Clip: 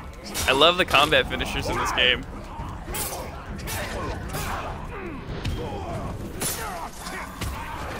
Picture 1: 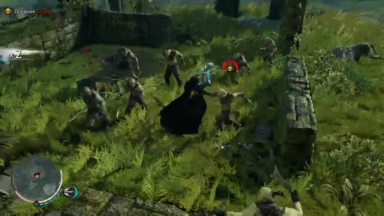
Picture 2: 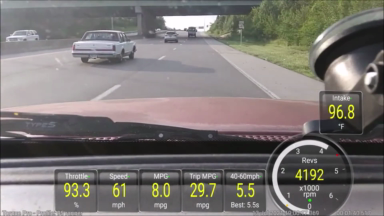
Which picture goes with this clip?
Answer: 1